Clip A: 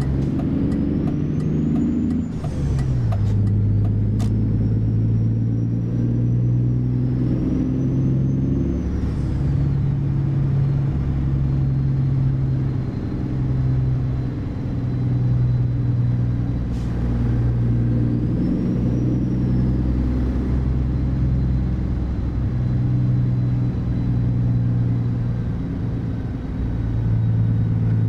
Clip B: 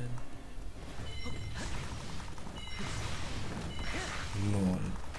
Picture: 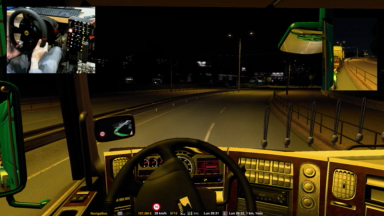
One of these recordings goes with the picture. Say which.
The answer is A